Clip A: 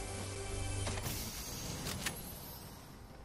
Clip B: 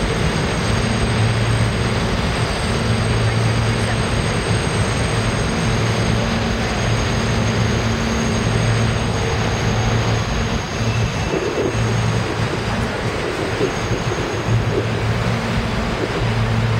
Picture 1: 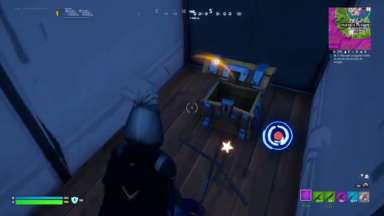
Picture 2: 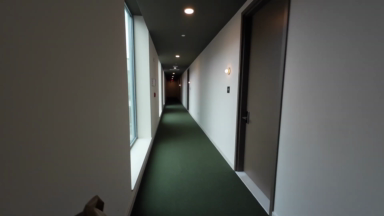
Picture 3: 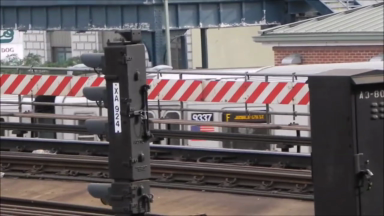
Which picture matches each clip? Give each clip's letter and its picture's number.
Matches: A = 1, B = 3